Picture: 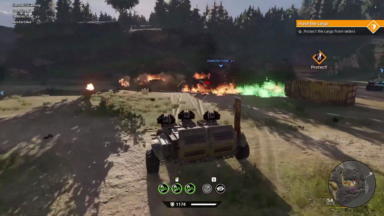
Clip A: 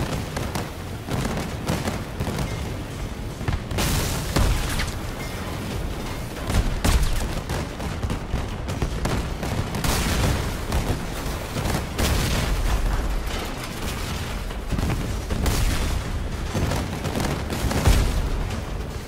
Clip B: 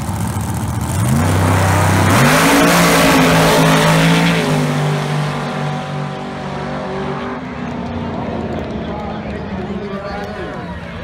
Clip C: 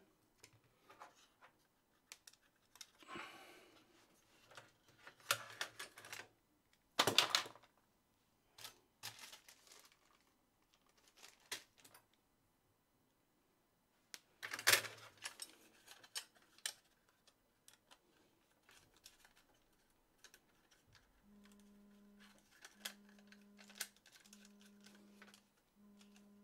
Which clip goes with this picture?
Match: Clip A